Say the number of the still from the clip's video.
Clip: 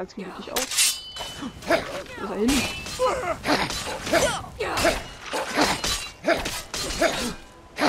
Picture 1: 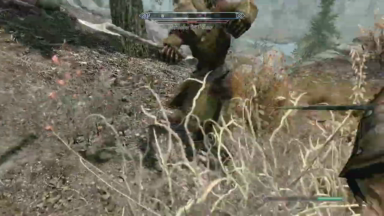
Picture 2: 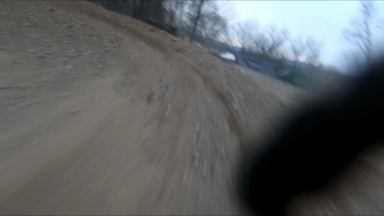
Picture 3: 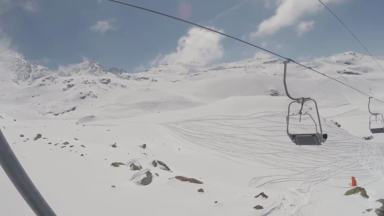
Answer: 1